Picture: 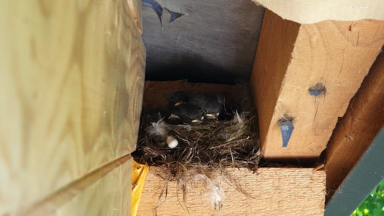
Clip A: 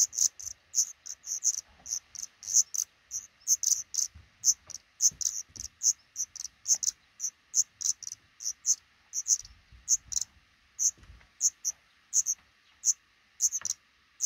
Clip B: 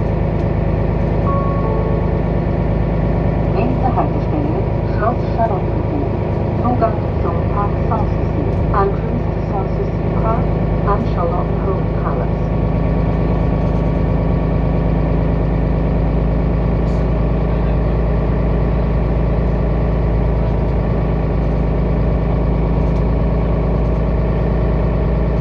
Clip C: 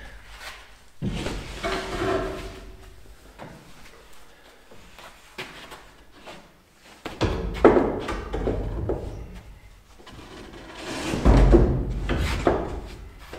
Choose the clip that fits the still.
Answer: A